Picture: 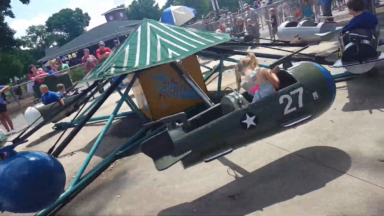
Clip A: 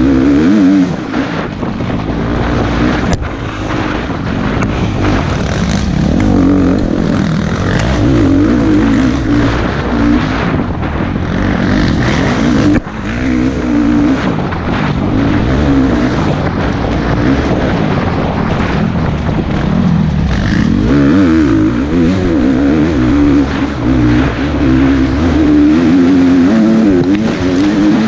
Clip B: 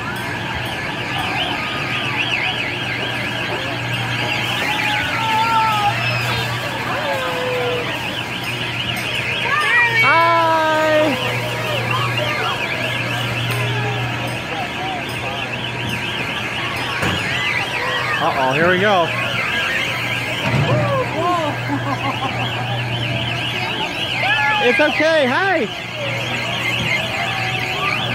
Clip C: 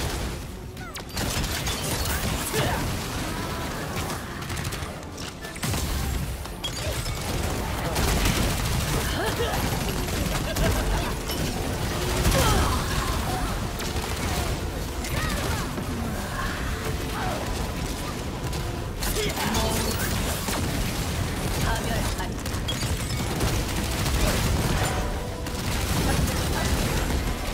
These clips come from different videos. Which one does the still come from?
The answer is B